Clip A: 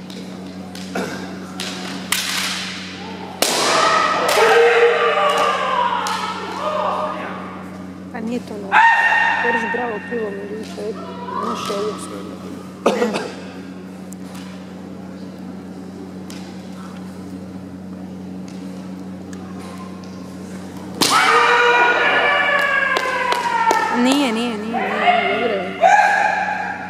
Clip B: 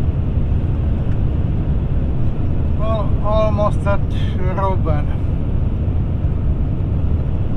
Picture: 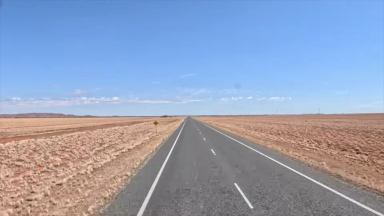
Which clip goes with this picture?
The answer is B